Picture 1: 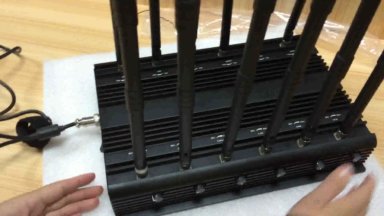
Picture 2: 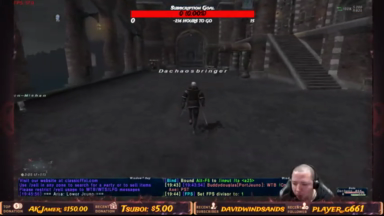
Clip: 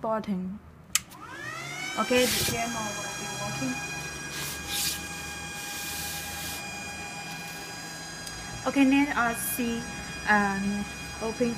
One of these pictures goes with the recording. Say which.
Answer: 1